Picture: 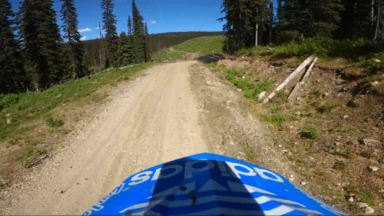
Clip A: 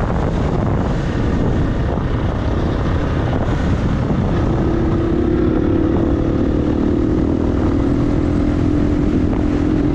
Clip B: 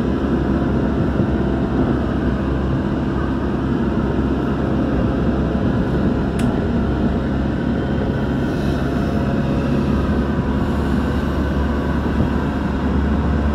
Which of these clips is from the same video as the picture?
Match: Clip A